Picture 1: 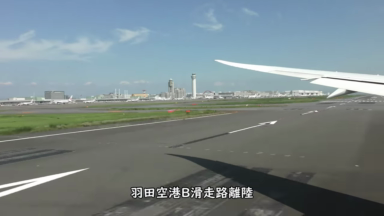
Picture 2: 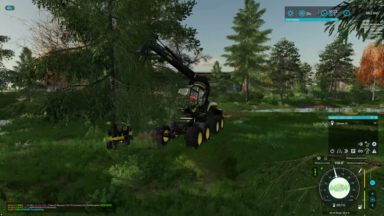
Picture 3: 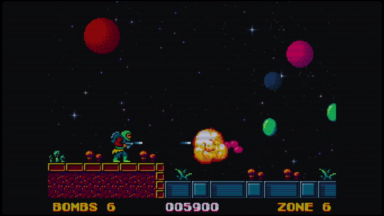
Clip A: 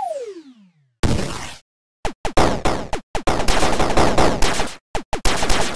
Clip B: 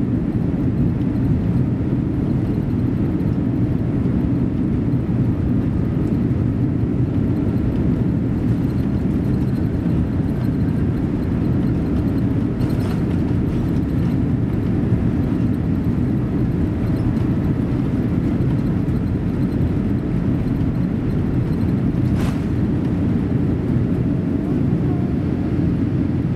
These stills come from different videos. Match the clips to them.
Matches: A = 3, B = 1